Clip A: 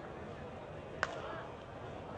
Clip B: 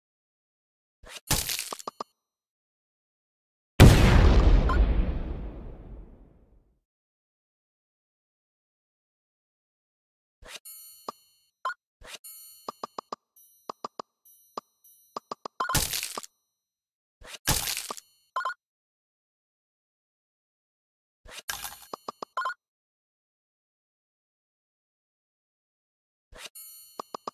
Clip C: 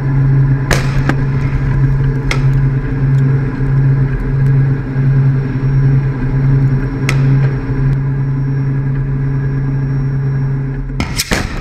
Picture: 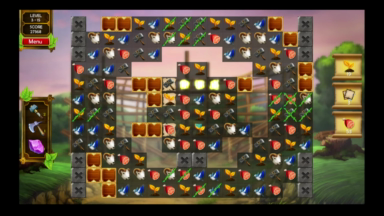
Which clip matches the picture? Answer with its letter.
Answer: B